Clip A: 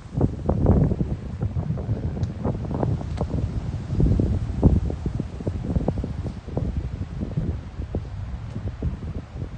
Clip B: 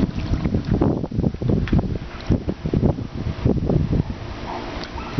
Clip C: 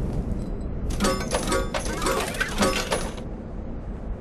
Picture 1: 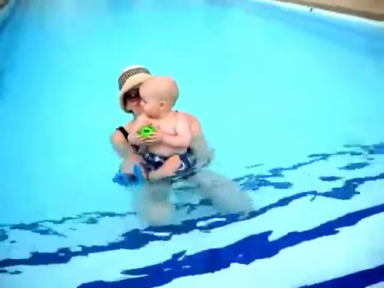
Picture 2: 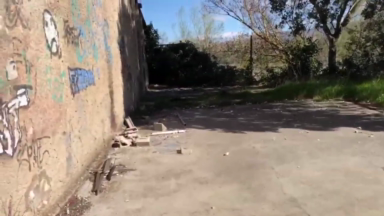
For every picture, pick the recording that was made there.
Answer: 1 B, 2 A